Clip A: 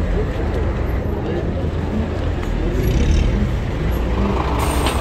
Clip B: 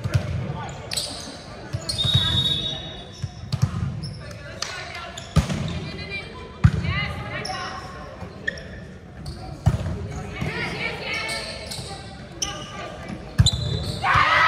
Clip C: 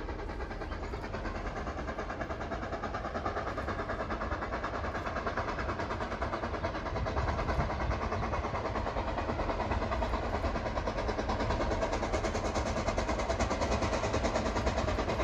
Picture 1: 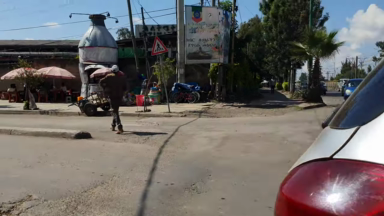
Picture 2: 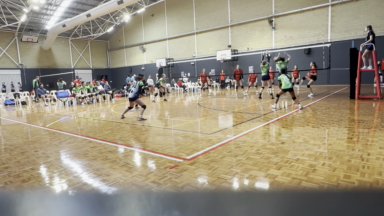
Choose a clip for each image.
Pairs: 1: A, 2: B